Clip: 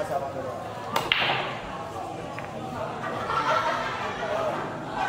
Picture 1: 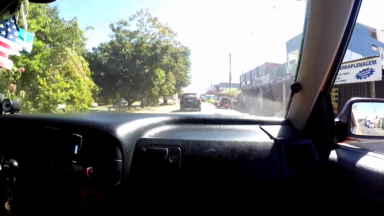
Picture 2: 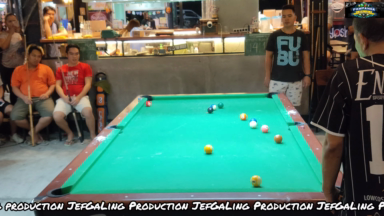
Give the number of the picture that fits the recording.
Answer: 2